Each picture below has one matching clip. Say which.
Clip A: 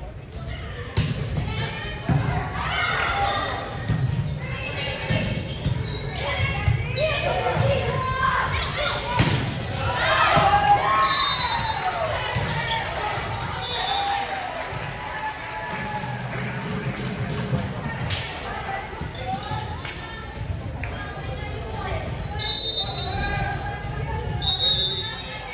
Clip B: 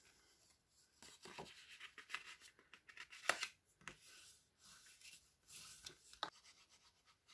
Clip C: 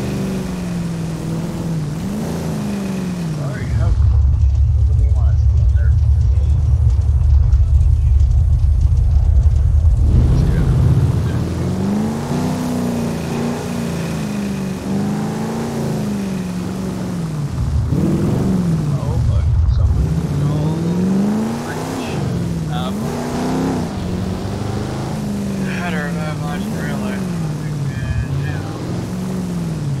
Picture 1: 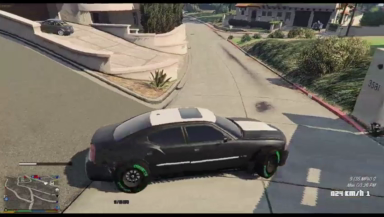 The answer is C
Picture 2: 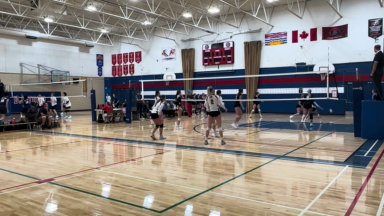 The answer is A